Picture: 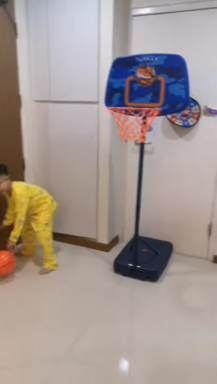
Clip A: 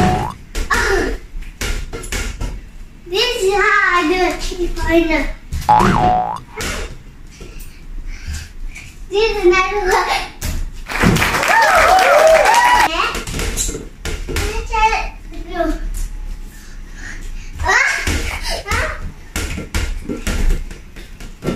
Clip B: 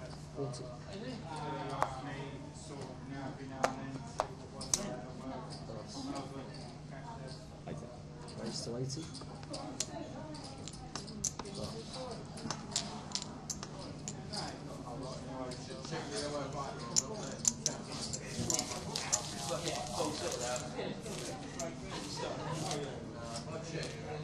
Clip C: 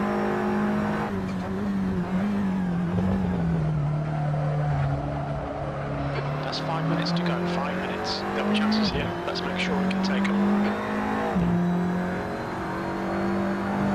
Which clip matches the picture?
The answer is A